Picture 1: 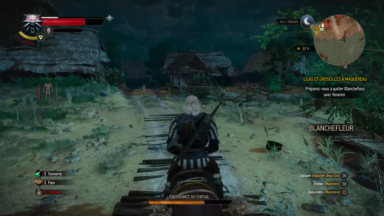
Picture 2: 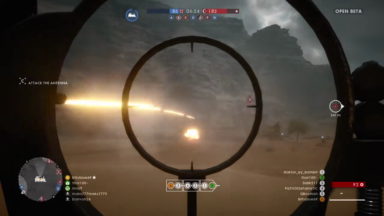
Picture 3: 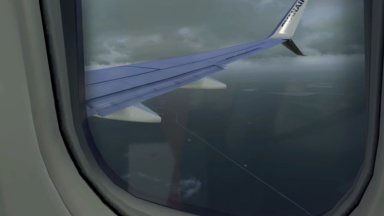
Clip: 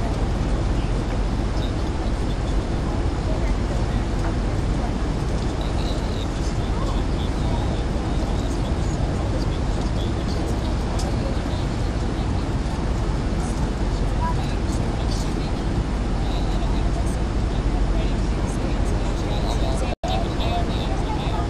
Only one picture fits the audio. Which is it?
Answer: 3